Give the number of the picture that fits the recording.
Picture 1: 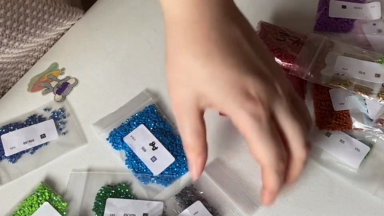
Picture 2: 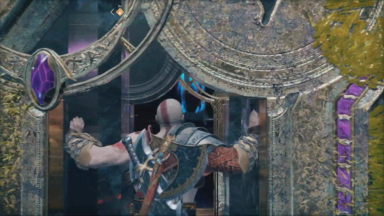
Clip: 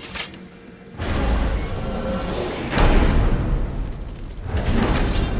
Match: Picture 2